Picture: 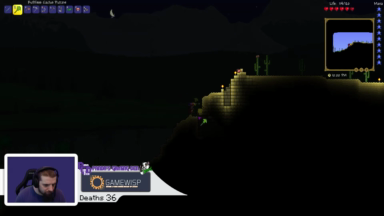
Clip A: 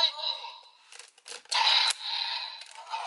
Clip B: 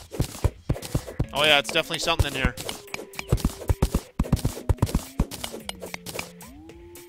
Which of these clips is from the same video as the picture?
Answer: B